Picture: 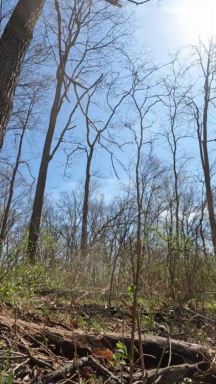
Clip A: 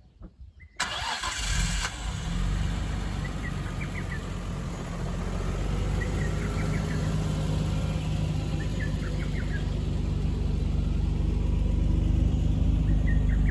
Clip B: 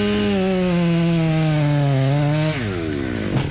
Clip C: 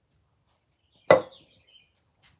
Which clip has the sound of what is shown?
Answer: B